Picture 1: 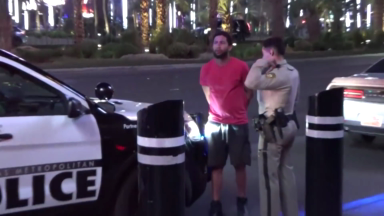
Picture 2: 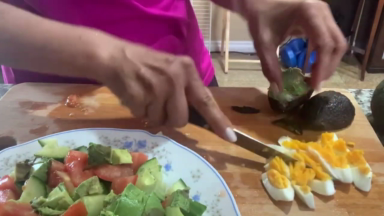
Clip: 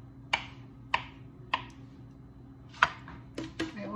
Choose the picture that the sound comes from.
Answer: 2